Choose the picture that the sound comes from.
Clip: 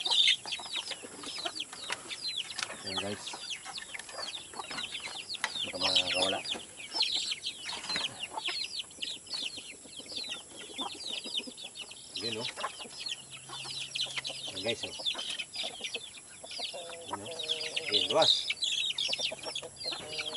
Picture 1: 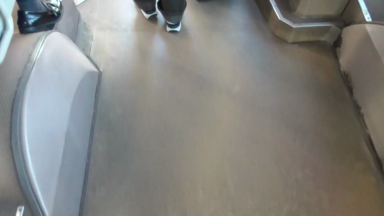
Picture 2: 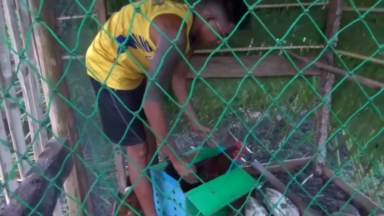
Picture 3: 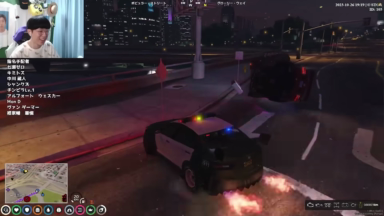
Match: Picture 2